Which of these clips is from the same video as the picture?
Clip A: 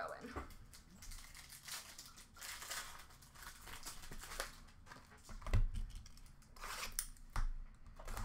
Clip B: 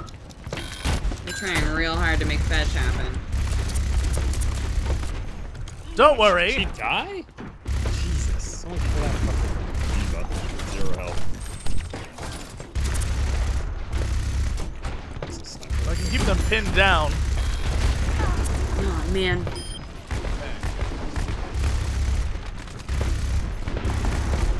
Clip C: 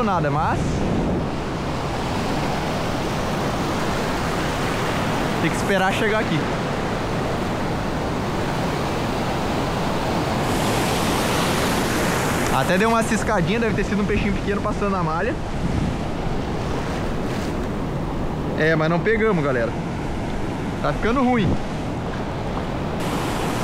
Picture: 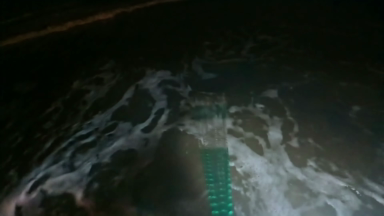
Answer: C